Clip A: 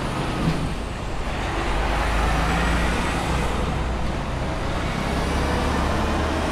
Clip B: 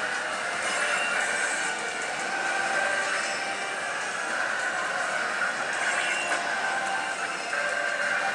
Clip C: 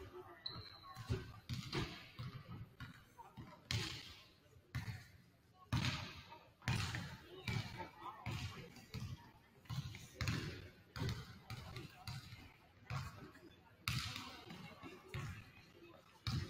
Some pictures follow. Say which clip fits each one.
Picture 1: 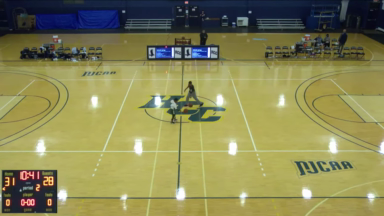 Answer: C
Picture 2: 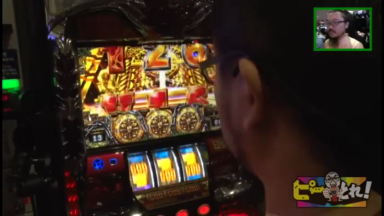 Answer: B